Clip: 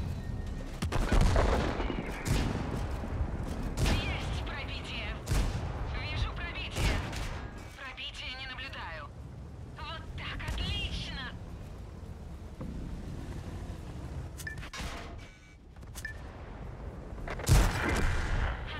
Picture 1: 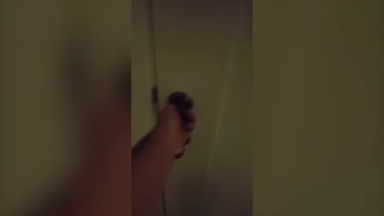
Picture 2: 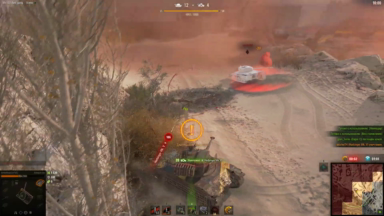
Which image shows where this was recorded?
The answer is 2